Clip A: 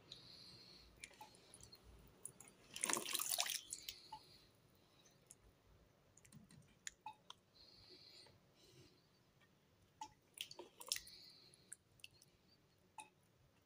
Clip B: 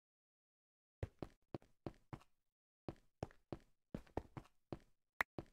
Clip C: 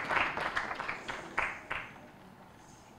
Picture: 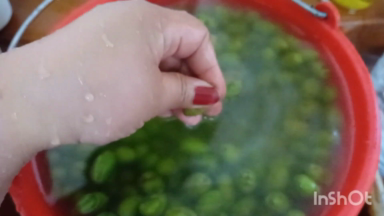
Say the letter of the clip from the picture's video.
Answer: A